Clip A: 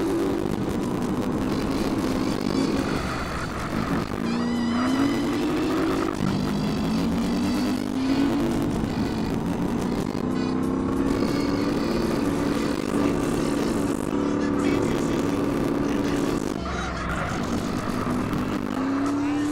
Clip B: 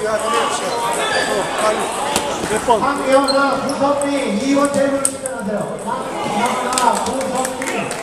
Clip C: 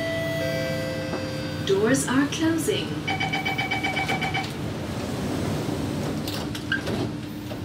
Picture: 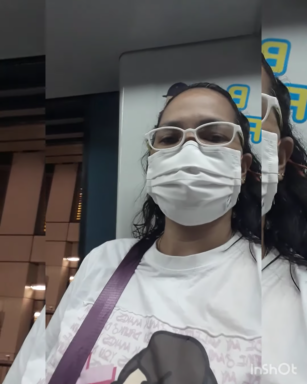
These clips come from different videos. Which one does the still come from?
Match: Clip C